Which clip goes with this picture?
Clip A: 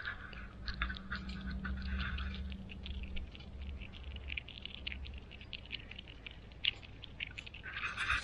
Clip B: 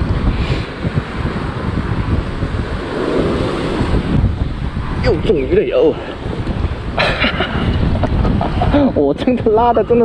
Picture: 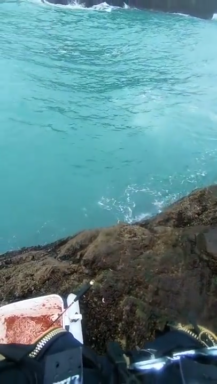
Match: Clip B